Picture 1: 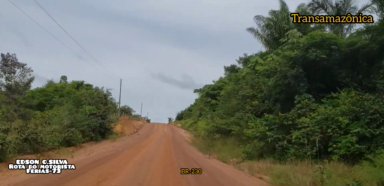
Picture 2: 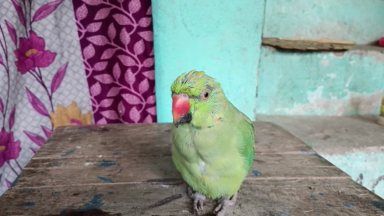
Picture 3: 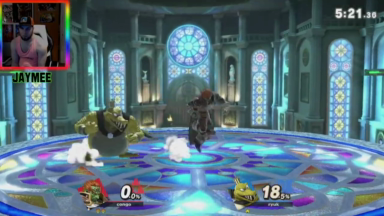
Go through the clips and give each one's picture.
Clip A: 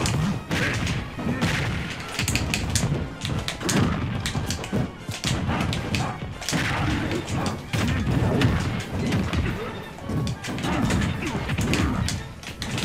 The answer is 3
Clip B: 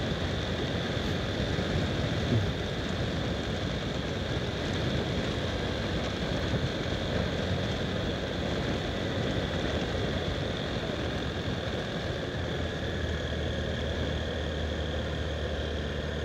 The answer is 1